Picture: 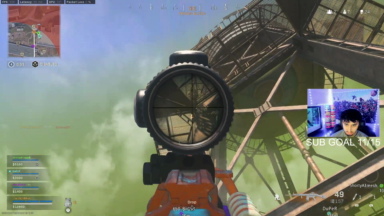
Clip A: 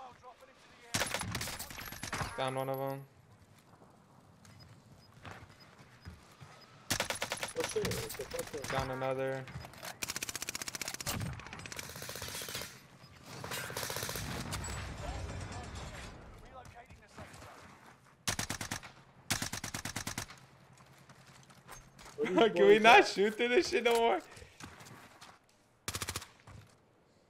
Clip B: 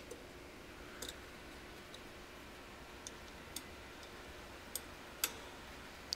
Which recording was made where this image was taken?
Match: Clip A